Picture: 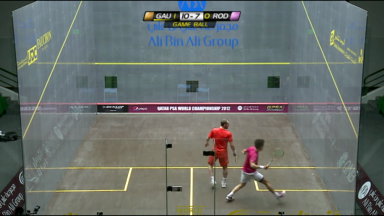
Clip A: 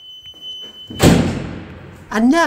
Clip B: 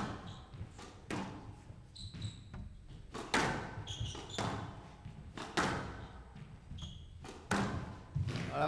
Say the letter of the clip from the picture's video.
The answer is B